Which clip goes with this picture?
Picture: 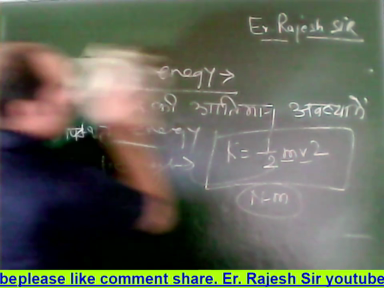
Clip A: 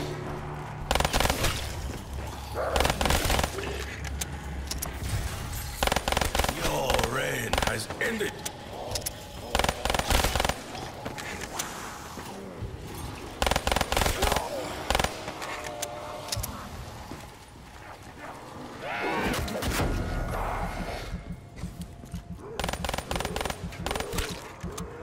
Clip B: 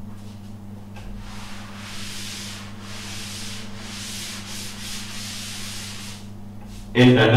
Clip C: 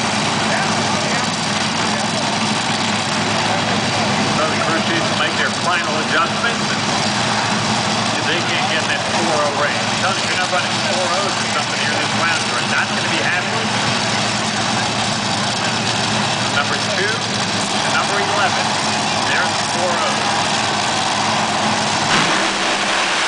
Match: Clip B